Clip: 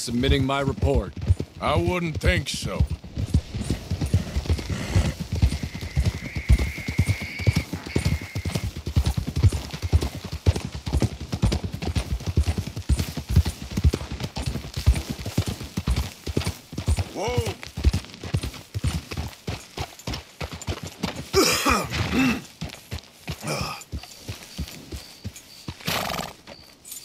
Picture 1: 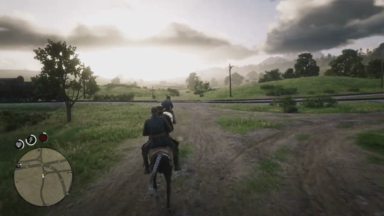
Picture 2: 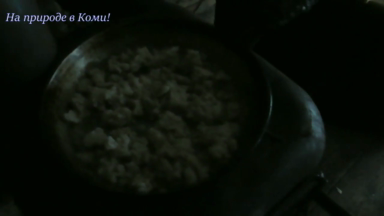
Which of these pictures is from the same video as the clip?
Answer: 1